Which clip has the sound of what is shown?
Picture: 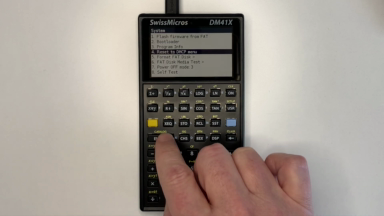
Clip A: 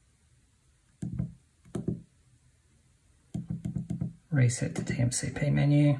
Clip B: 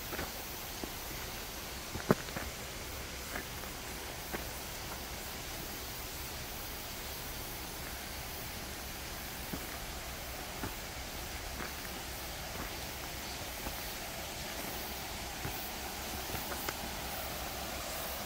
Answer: A